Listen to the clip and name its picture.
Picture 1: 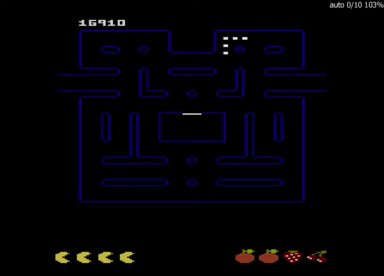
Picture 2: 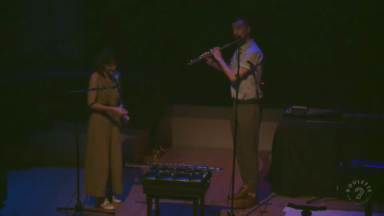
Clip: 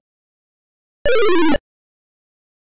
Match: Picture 1